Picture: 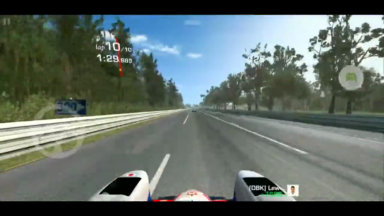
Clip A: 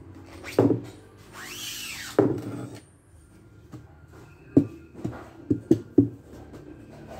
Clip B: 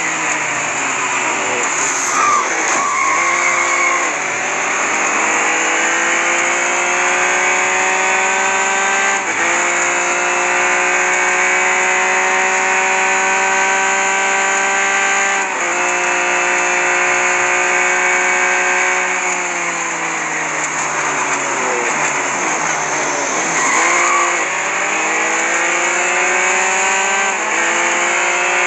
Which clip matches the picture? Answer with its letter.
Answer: B